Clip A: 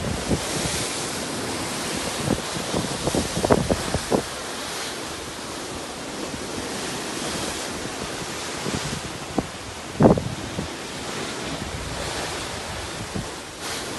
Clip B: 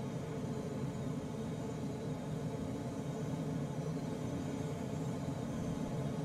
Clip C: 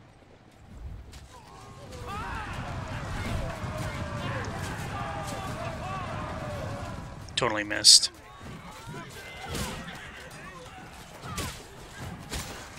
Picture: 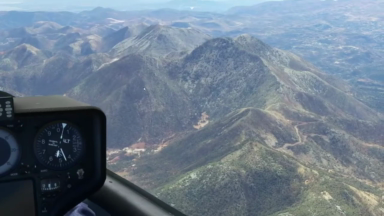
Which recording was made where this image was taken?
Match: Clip B